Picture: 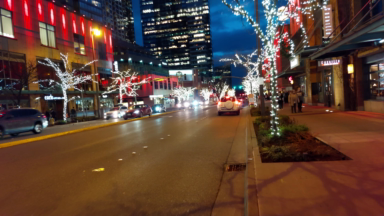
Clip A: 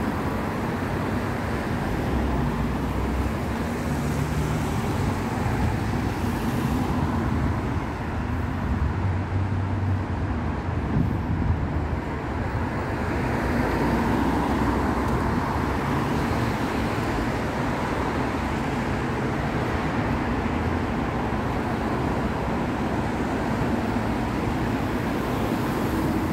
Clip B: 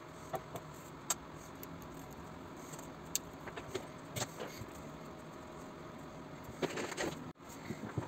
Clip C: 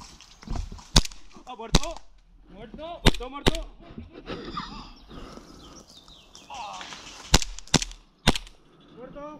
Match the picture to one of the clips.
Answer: A